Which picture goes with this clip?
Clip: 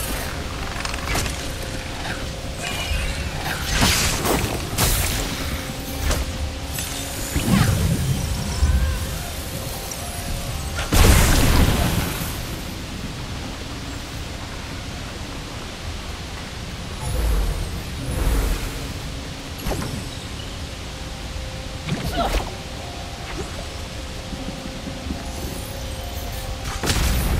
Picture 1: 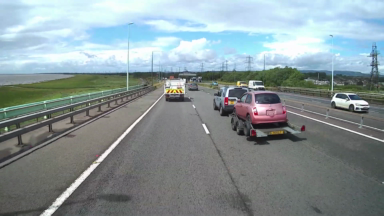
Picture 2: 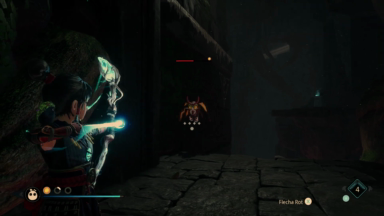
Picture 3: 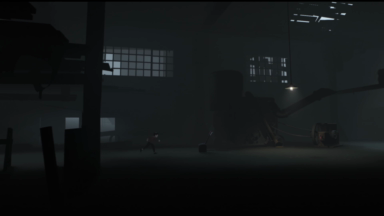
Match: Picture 2